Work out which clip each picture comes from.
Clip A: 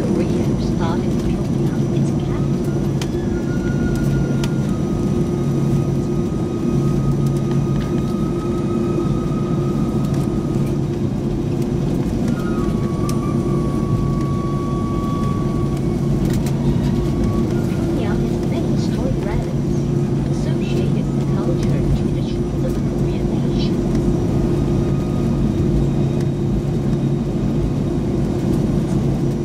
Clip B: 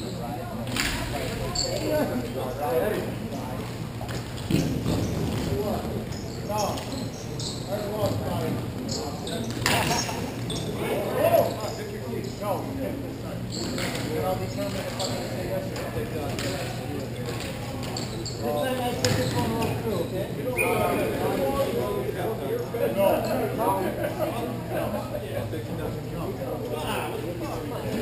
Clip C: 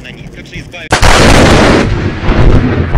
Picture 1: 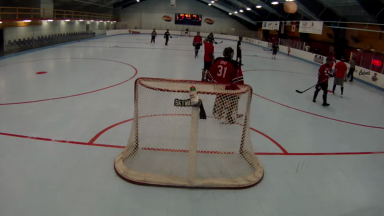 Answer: B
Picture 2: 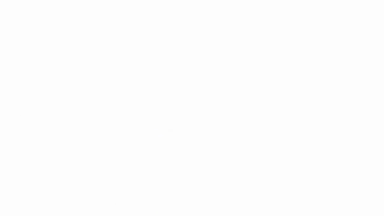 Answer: C